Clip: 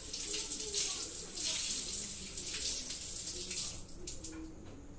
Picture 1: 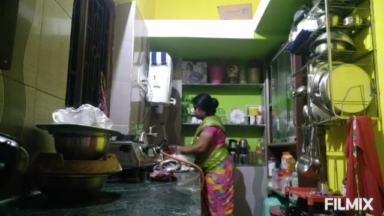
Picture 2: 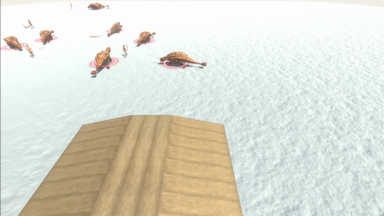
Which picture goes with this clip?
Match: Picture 1